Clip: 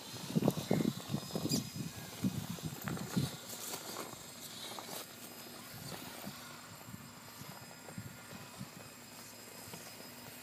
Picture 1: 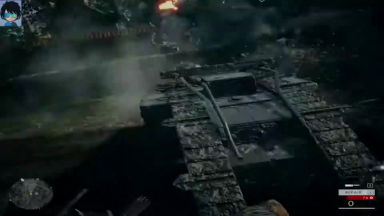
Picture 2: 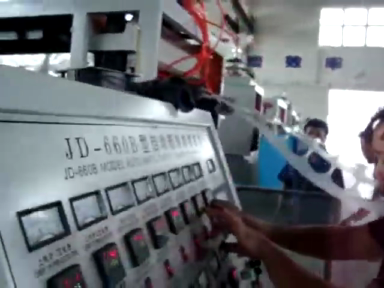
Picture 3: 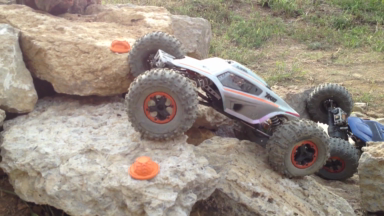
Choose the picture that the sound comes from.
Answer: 3